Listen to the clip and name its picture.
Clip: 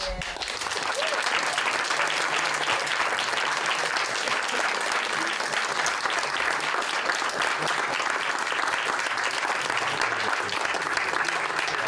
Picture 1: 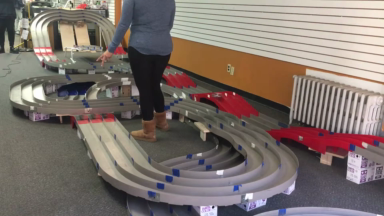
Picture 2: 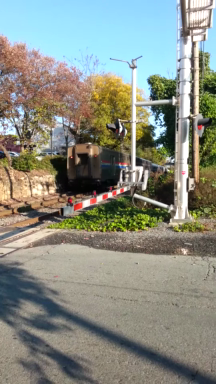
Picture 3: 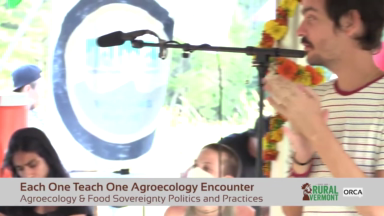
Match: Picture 3